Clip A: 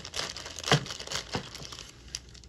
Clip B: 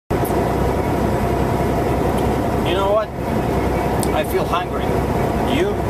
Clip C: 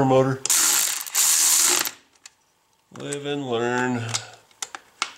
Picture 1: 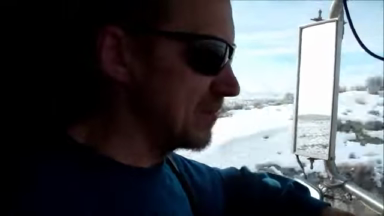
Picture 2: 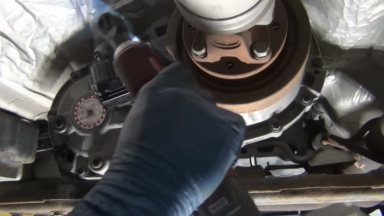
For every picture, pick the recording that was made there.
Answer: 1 B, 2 C